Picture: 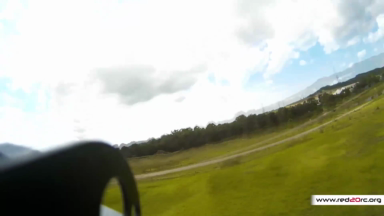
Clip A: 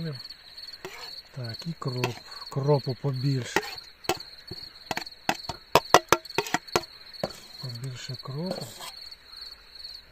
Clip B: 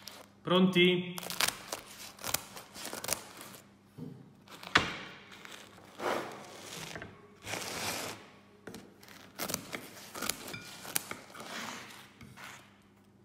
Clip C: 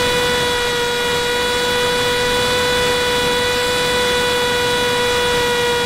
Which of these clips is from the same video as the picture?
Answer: C